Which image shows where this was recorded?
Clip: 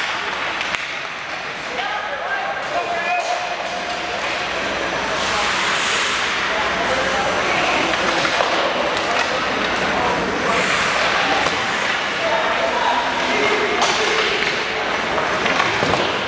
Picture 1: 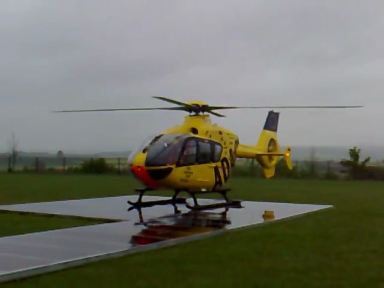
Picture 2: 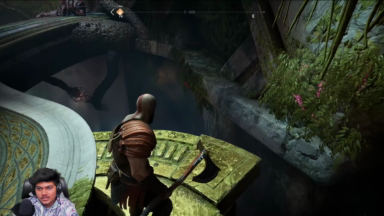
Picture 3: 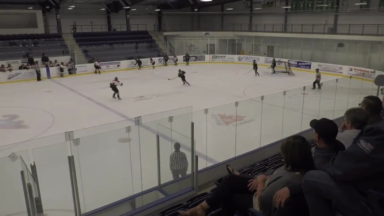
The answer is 3